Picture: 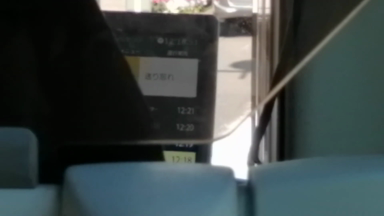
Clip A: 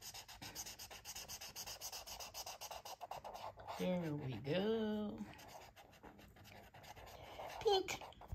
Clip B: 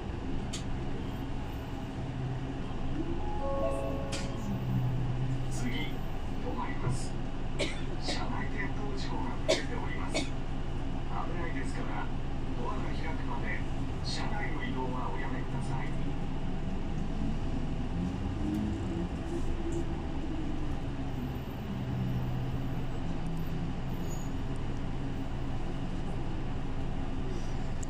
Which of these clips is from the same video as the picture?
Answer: B